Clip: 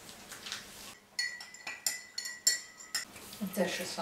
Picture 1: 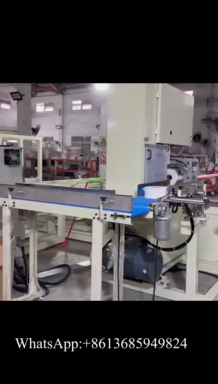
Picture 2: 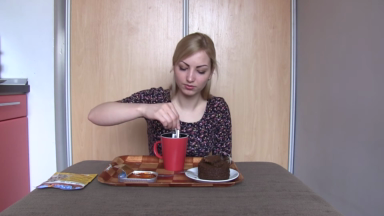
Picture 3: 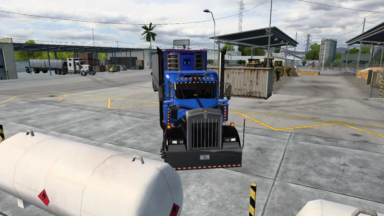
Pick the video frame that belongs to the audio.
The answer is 2